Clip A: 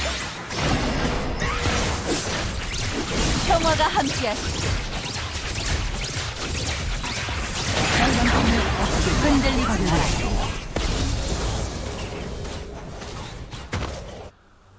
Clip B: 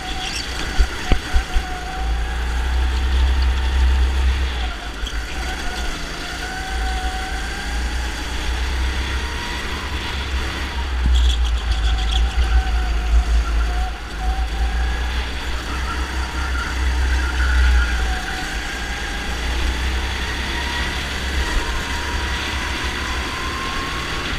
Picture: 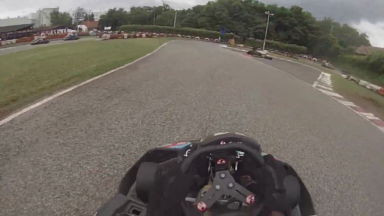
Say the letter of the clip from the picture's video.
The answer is B